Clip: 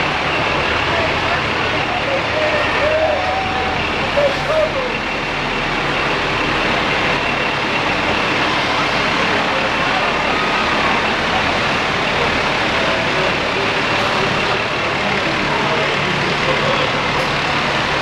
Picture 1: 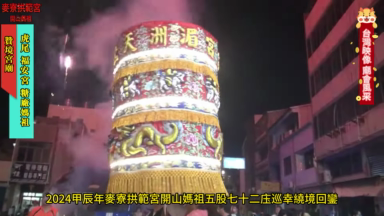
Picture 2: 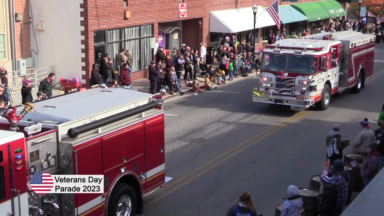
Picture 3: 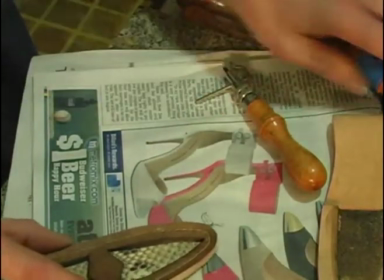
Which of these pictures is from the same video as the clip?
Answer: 2